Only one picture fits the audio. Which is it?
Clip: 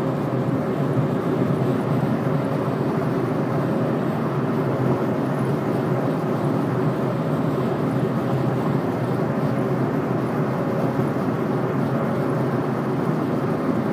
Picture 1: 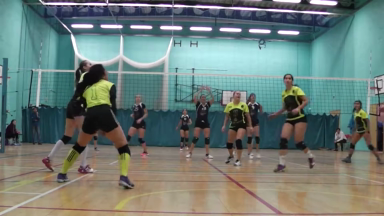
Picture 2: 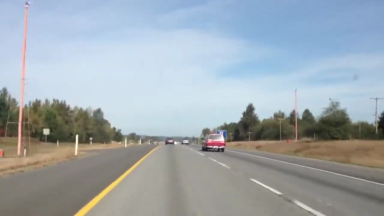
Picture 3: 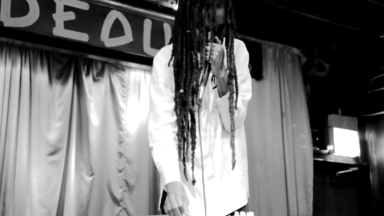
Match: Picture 2